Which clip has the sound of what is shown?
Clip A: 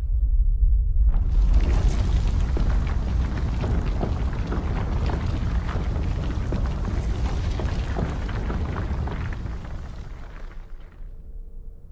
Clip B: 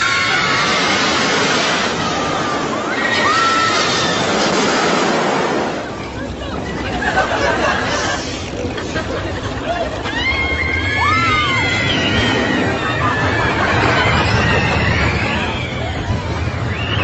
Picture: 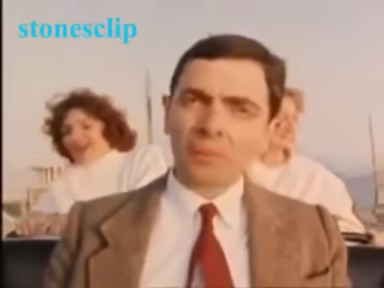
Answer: B